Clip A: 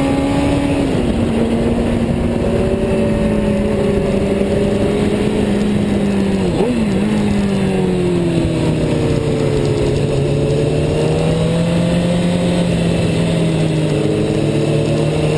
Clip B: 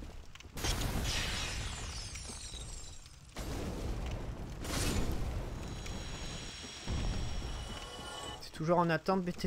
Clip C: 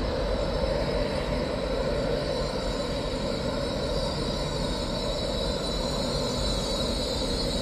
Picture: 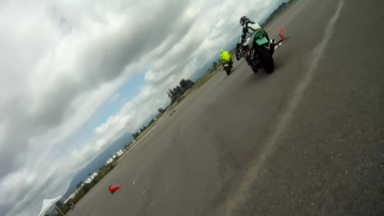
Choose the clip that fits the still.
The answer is A